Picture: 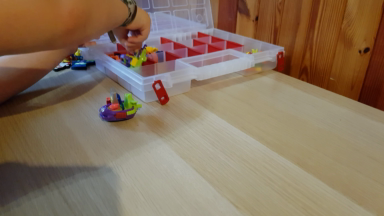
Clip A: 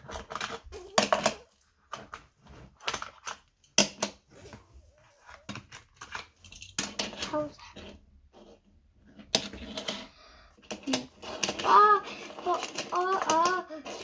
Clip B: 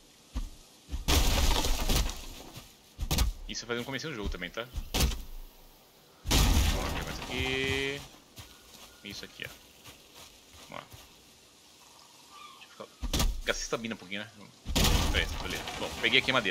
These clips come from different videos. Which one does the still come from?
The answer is A